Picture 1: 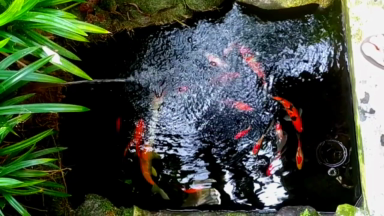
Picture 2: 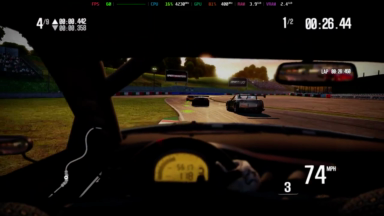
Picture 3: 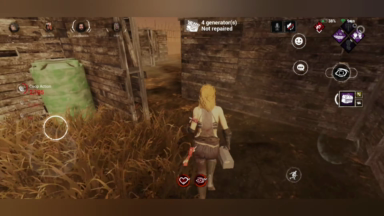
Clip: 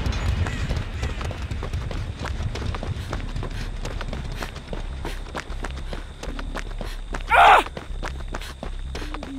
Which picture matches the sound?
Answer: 3